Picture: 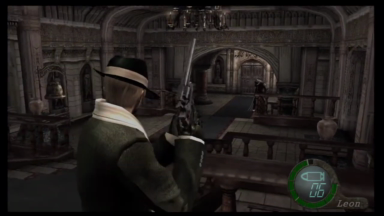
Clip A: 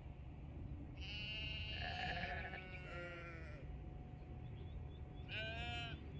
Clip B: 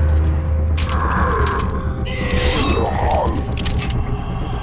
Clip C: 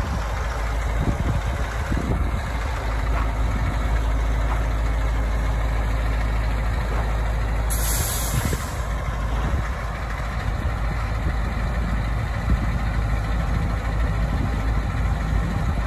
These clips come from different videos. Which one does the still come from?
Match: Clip B